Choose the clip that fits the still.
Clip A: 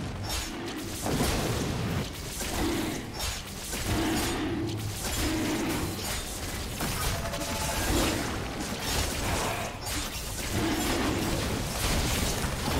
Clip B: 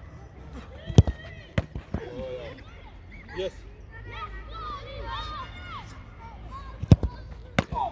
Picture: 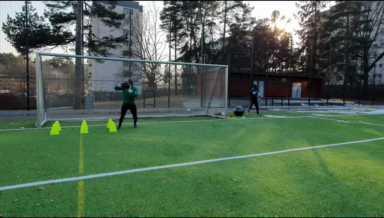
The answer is B